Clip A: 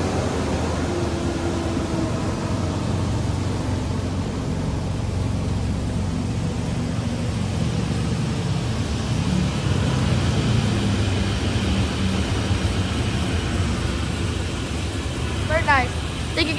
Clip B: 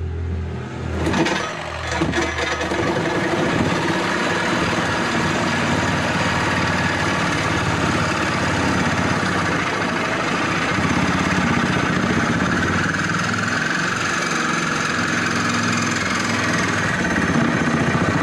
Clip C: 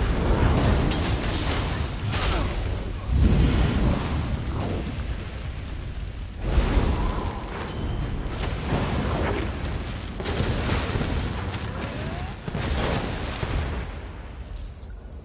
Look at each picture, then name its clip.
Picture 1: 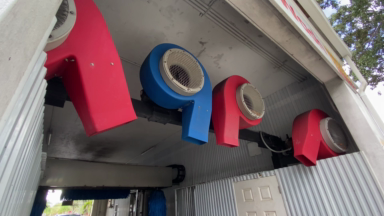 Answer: A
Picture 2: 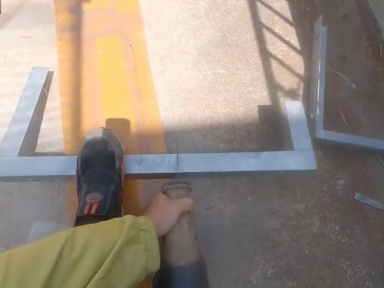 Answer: B